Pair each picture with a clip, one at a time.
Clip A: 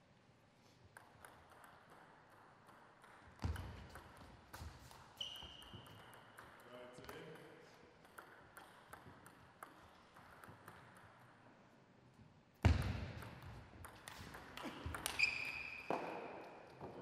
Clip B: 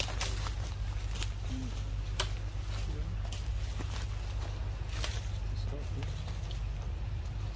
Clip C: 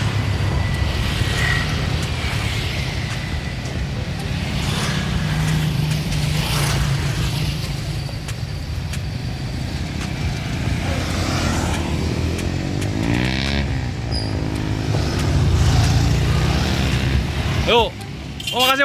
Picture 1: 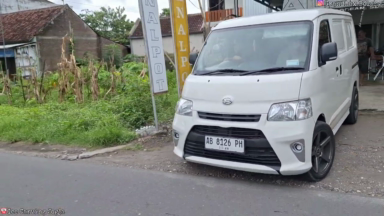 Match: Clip C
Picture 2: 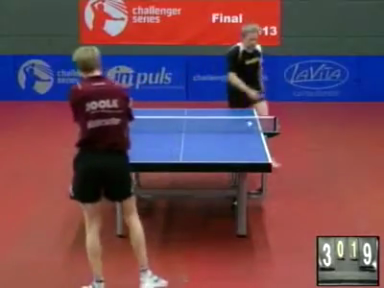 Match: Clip A